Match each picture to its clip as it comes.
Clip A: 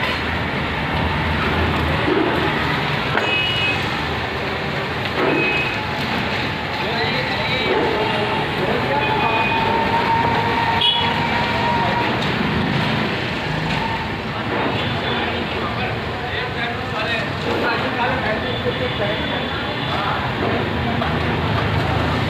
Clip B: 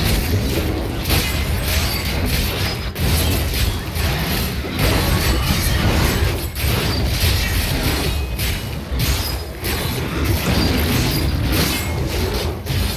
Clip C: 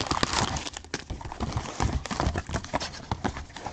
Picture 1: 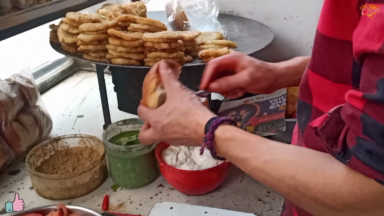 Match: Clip A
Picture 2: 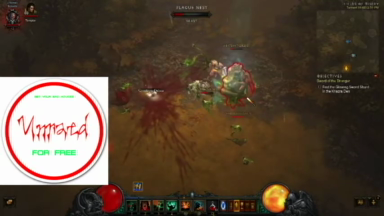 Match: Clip B